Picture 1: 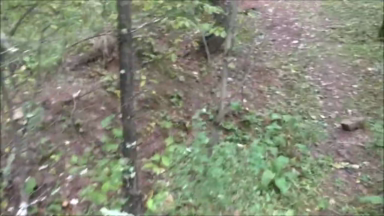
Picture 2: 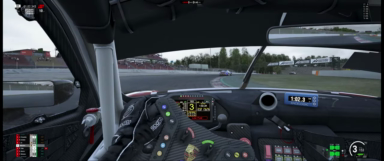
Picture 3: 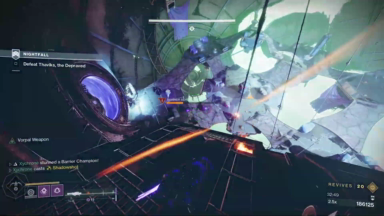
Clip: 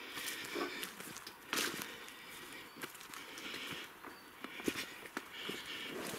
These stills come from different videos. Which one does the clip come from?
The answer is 1